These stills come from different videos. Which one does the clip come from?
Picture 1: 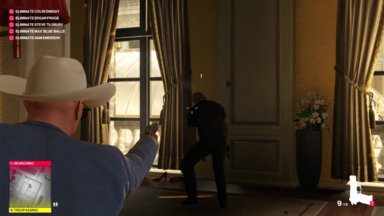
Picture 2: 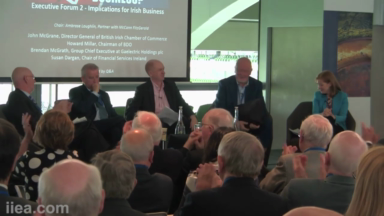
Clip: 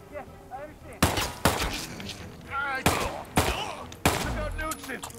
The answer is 1